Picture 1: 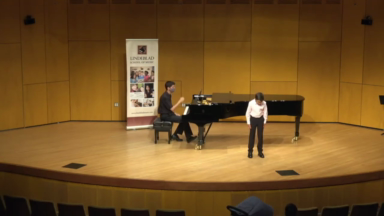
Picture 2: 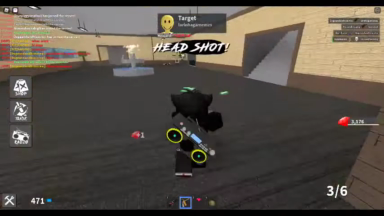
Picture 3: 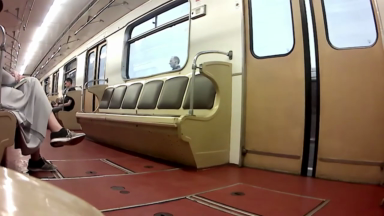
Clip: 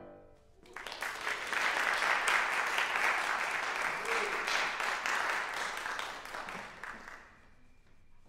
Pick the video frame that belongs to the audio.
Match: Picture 1